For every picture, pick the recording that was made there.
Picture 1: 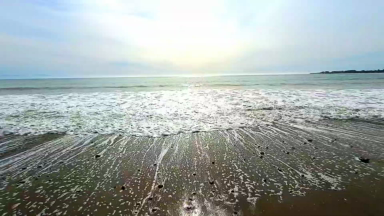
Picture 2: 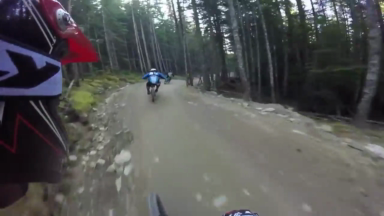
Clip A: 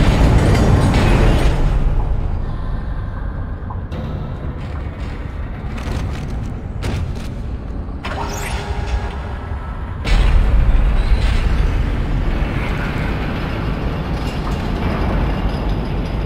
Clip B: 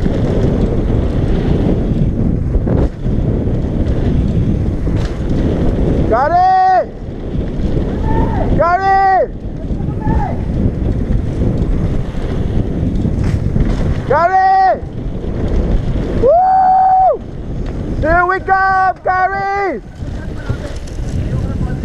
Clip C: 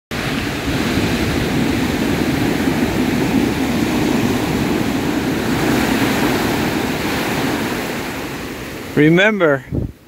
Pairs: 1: C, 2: B